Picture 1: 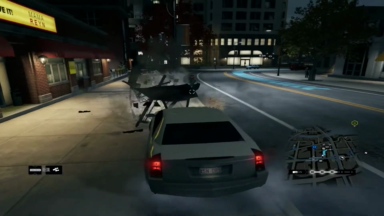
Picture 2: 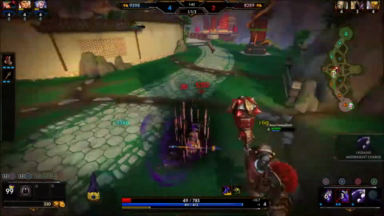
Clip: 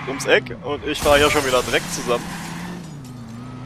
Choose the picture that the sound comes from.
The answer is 1